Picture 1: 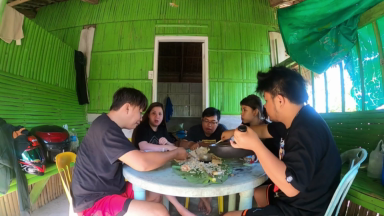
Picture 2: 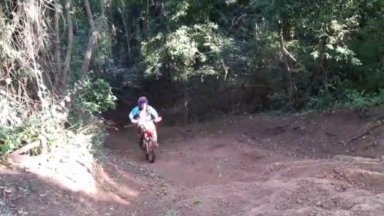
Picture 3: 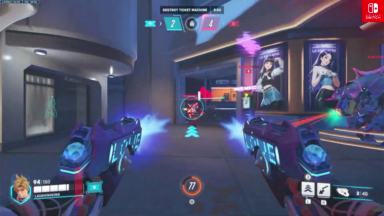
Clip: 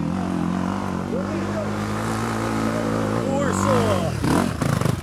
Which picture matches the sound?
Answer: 2